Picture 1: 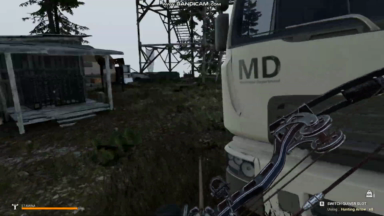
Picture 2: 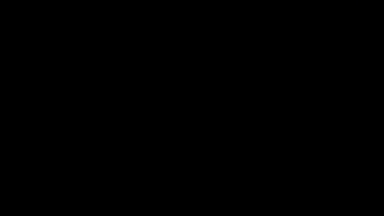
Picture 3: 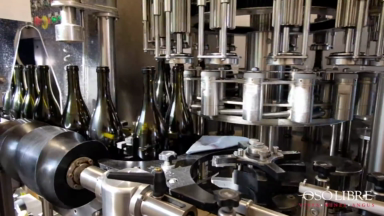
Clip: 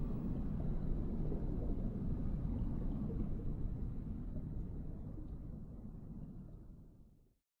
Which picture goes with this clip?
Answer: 2